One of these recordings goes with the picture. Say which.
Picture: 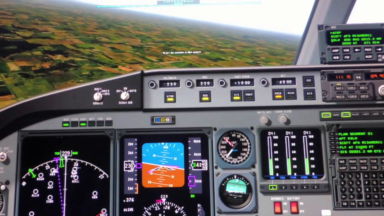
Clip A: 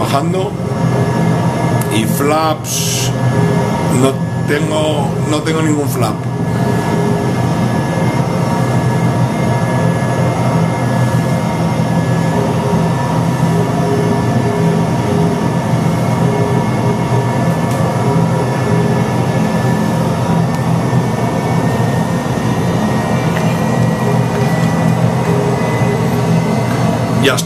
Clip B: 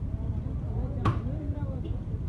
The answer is A